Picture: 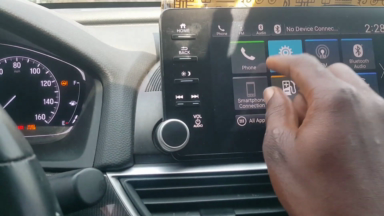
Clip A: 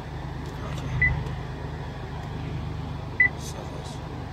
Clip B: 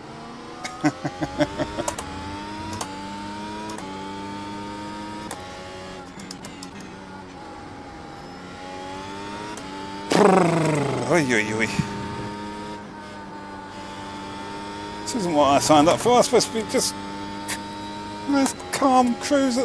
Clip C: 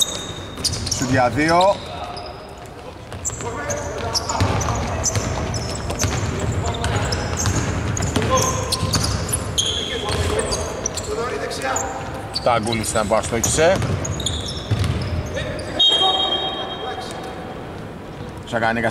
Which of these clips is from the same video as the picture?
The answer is A